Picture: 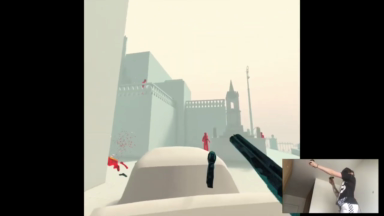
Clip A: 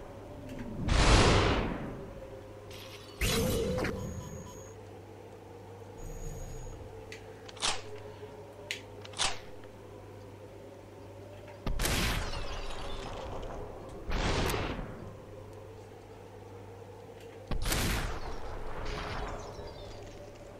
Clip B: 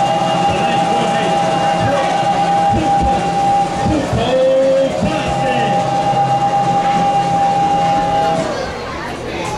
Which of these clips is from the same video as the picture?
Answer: A